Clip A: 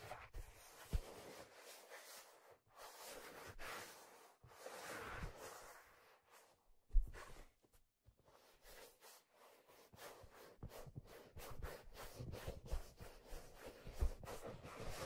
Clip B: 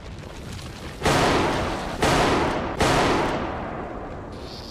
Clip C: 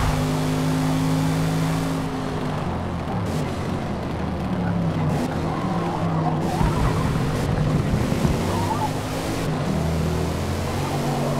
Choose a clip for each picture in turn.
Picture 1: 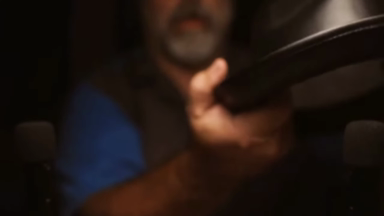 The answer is A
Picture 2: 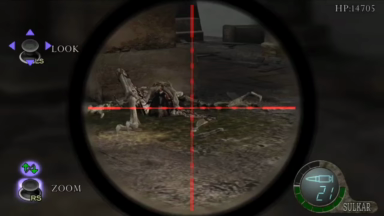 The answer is B